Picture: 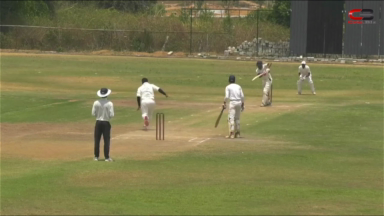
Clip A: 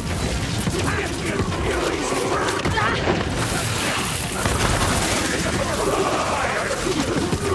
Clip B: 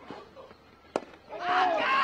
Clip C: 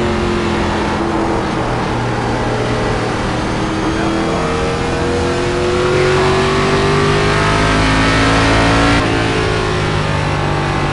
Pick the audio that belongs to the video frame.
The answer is B